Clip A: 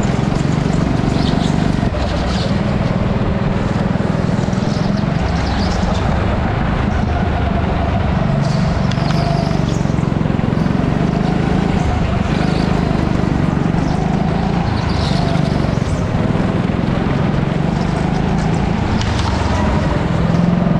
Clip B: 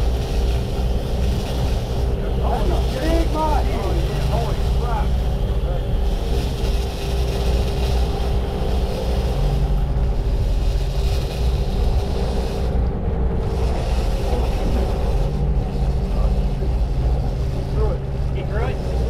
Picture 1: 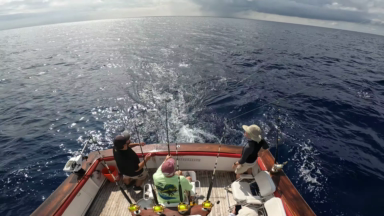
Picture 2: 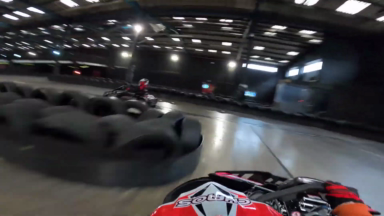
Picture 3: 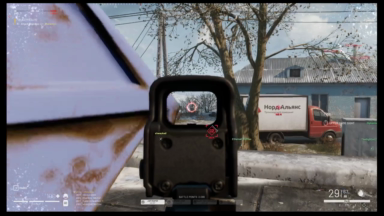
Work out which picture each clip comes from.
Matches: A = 2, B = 1